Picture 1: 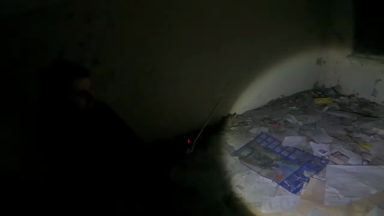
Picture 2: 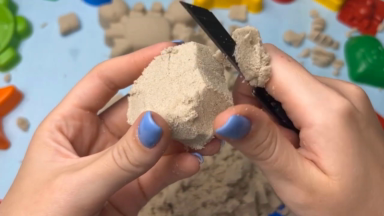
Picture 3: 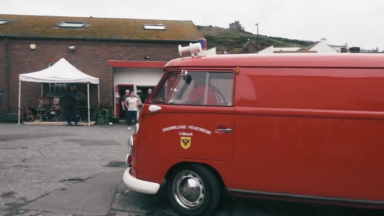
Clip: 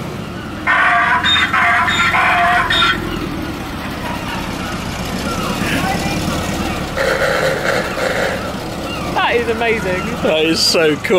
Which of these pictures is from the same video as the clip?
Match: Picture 3